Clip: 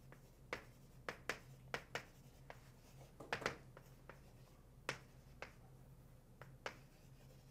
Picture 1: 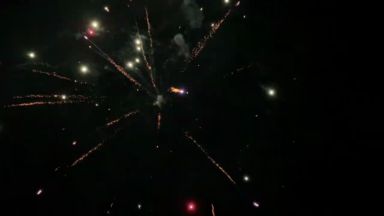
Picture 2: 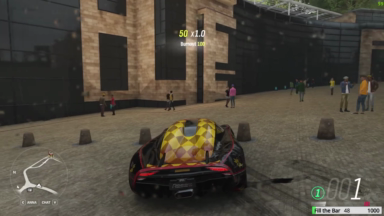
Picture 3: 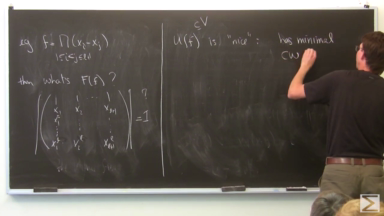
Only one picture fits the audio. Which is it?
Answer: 3